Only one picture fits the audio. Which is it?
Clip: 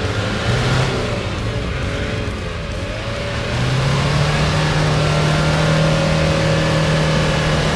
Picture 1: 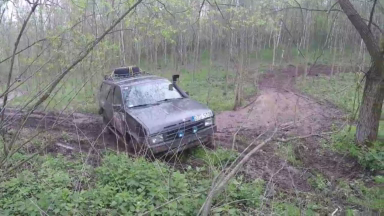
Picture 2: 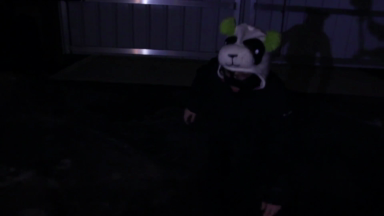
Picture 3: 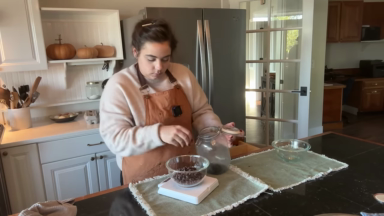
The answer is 1